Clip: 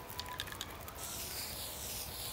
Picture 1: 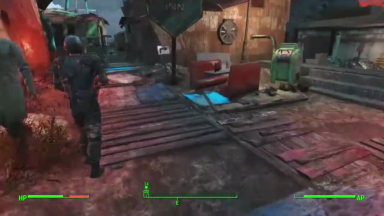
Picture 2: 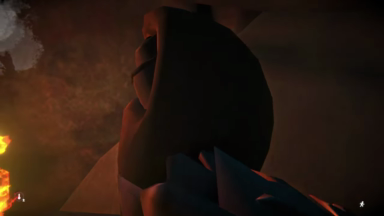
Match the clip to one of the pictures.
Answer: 2